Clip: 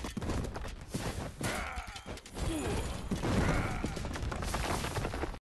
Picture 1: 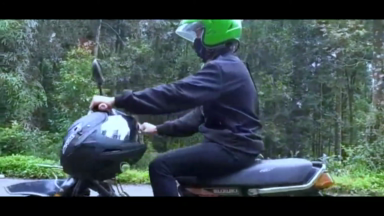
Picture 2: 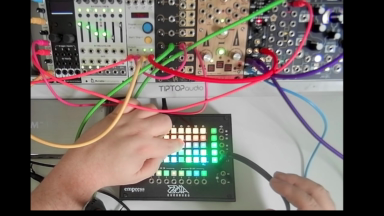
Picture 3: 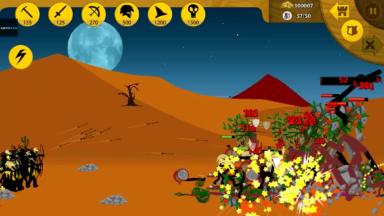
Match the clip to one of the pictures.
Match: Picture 3